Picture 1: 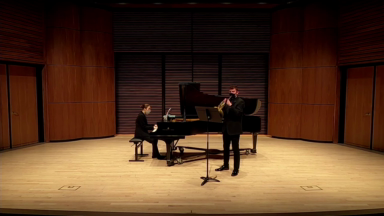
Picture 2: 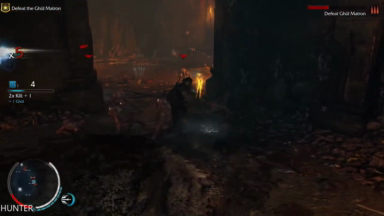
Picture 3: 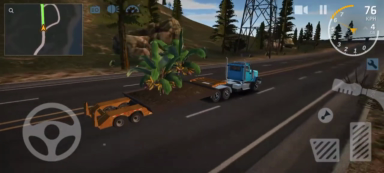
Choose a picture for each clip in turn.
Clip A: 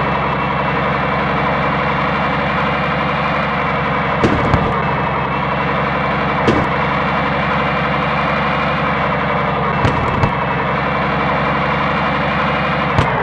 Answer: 3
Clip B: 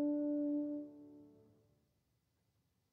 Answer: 1